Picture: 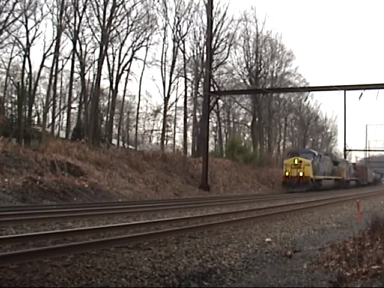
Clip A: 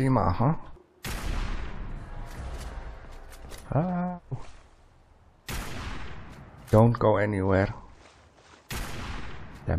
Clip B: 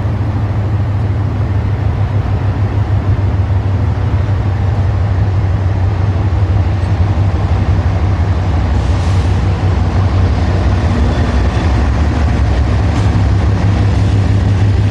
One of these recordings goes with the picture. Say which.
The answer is B